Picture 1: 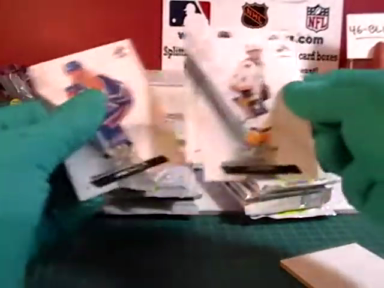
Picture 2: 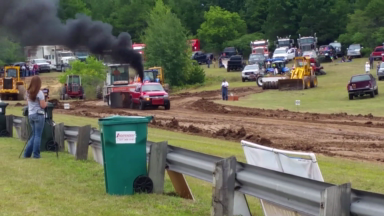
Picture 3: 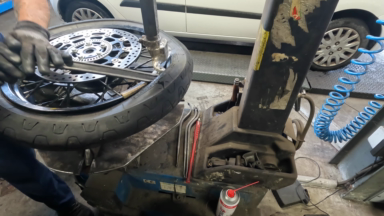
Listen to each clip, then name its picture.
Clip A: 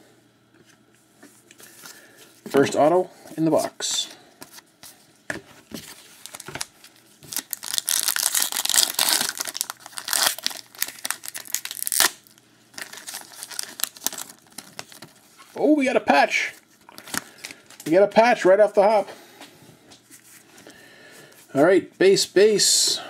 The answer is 1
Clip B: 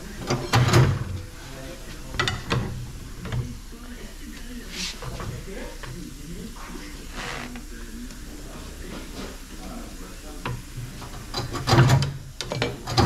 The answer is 3